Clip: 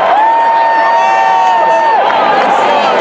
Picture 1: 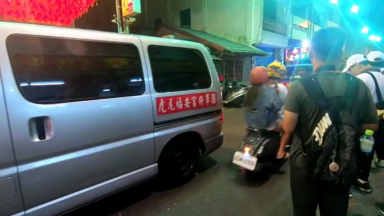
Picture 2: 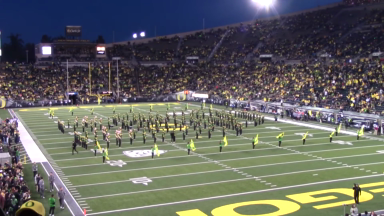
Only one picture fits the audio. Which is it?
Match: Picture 2